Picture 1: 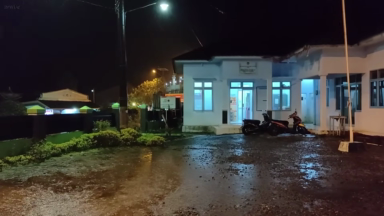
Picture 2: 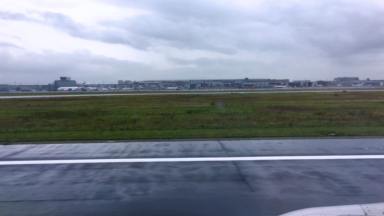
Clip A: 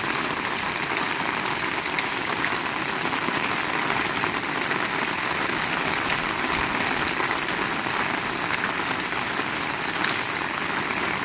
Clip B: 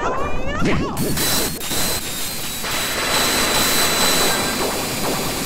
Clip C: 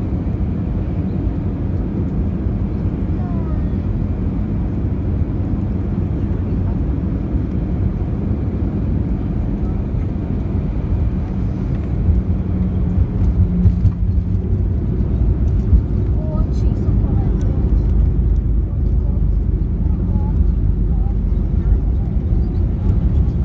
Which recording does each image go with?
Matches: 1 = A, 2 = C